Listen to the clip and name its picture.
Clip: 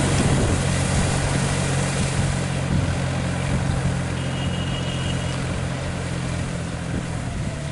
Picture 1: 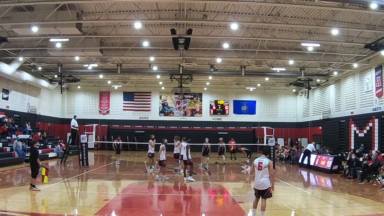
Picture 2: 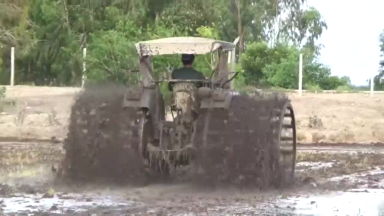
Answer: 2